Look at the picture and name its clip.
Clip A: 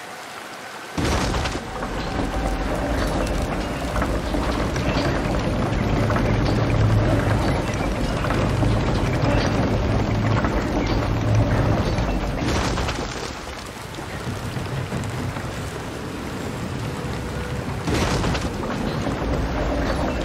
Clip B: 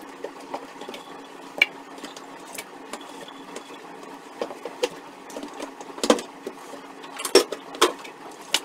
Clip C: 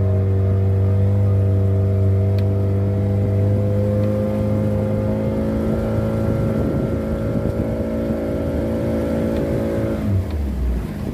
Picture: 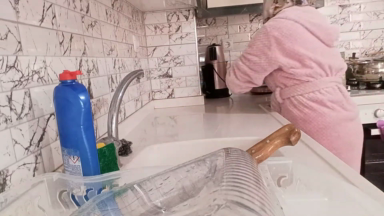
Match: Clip B